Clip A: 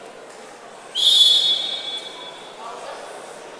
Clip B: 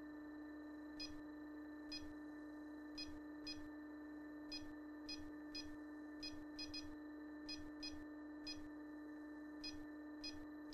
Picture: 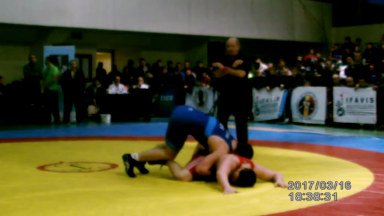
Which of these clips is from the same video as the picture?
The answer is A